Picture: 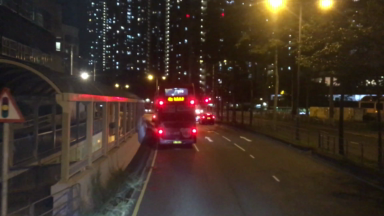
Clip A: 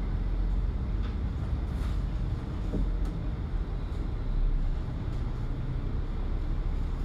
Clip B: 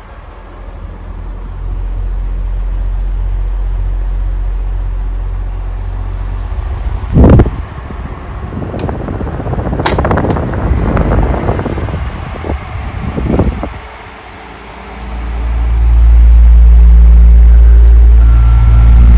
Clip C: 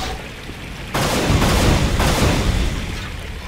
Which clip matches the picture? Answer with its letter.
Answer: A